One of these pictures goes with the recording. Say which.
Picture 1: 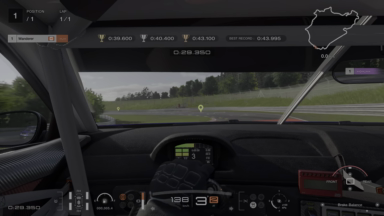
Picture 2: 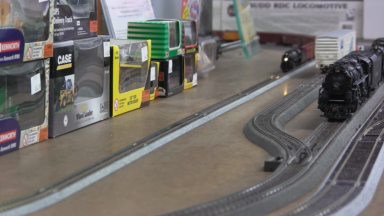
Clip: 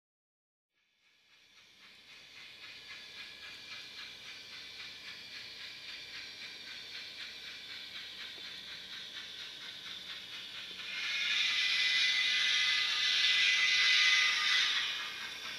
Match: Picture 2